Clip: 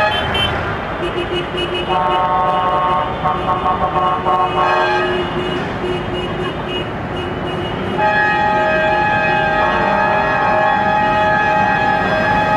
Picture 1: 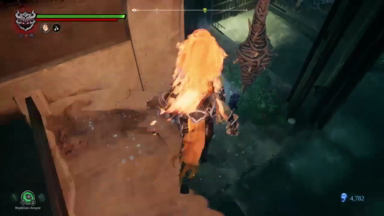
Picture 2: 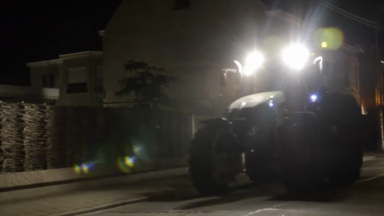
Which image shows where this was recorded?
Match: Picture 2